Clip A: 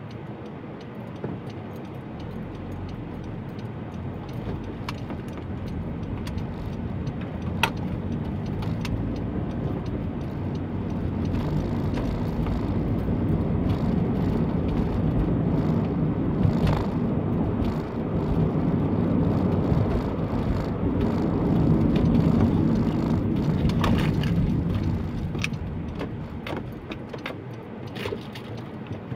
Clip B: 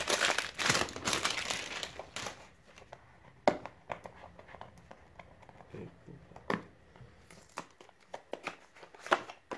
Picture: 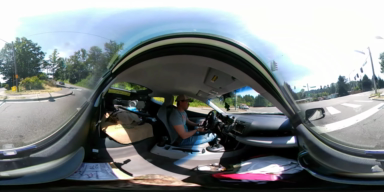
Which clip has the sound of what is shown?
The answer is A